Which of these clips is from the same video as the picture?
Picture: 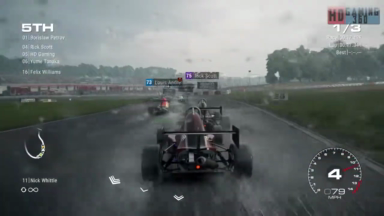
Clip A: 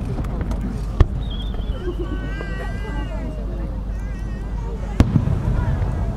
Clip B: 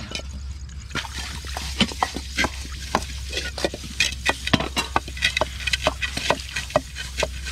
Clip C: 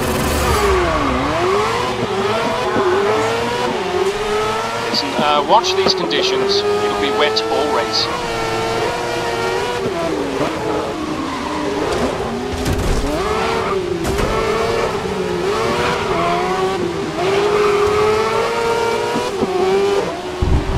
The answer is C